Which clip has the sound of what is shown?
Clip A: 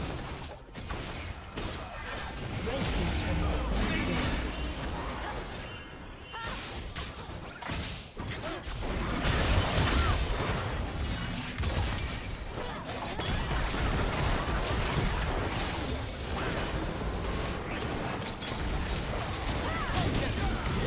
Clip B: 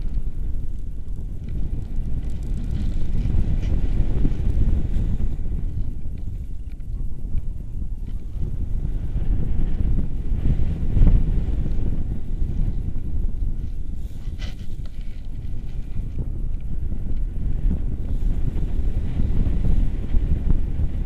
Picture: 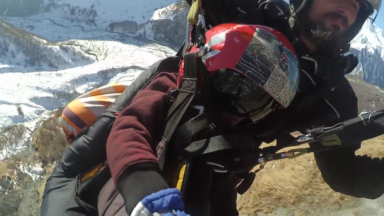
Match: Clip B